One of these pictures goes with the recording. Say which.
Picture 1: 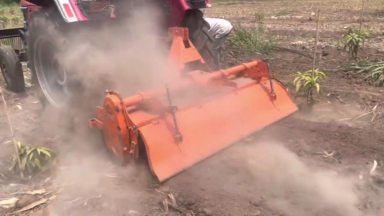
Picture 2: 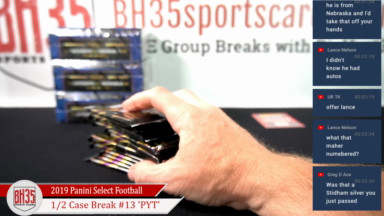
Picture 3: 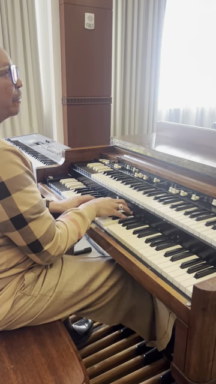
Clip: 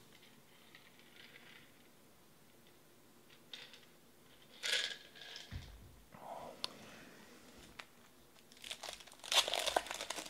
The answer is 2